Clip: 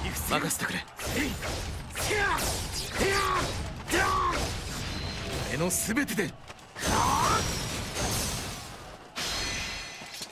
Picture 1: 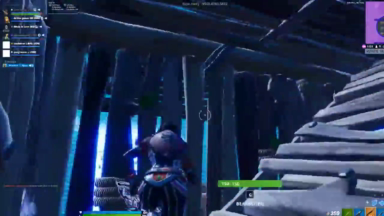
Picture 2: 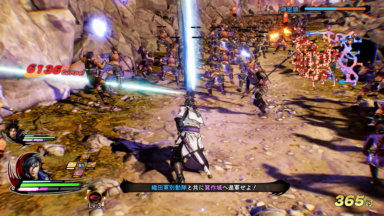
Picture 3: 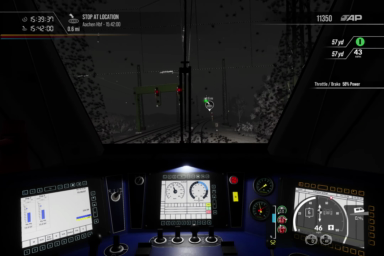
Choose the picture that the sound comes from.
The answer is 2